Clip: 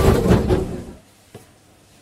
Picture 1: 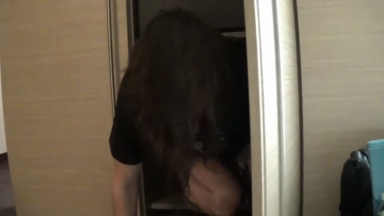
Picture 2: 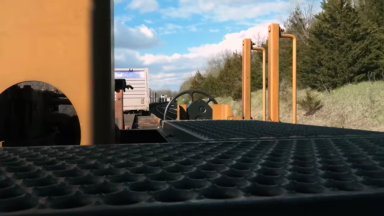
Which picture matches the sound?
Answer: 1